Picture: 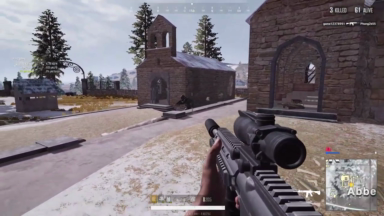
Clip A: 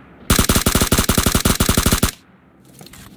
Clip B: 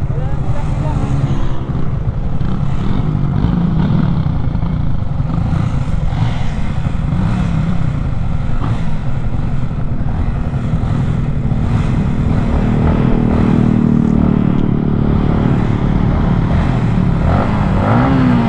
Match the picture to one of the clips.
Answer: A